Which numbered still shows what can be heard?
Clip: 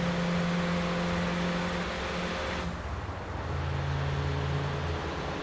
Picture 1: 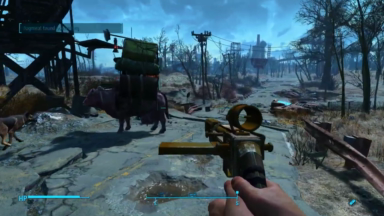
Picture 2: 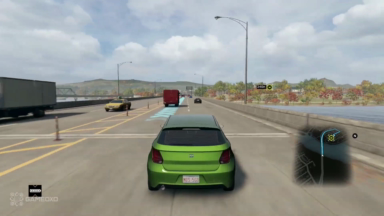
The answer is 2